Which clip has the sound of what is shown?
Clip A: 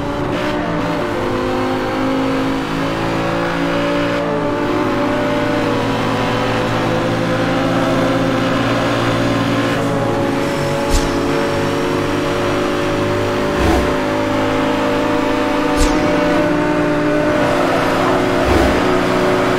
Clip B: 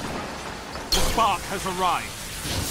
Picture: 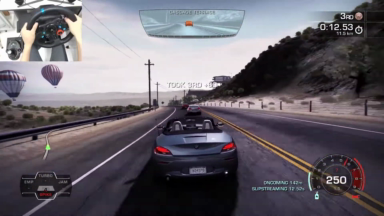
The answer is A